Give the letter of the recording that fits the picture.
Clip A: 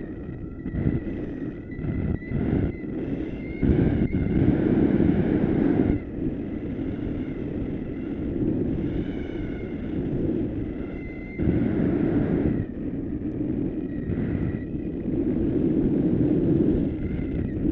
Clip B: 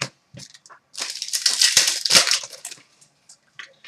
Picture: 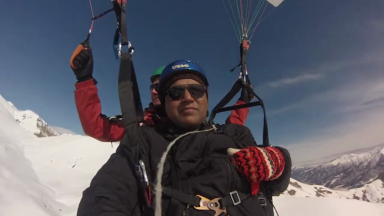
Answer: A